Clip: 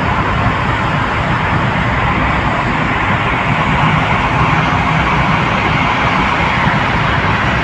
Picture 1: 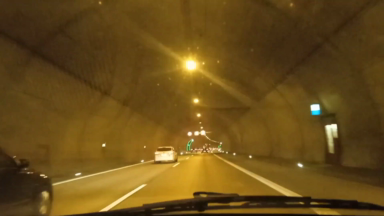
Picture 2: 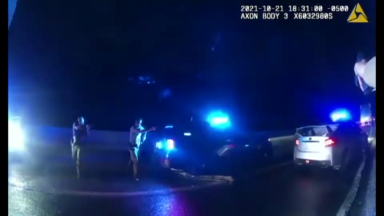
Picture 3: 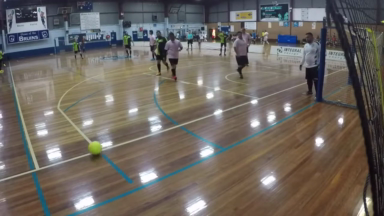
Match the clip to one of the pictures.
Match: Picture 1